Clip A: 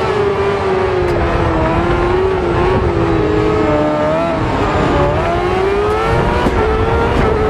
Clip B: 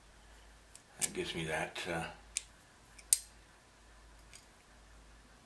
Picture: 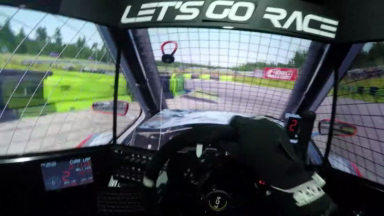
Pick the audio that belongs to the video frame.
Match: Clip A